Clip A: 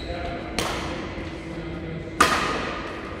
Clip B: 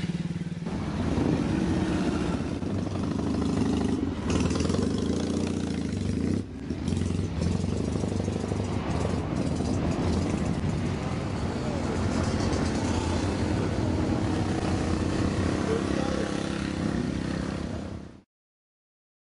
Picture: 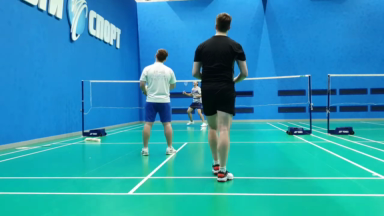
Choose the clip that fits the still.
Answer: A